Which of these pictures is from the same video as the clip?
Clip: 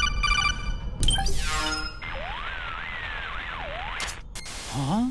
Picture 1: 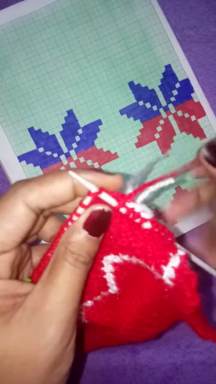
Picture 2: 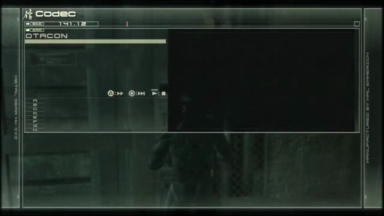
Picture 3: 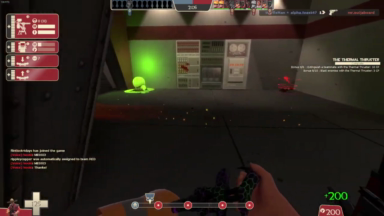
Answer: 2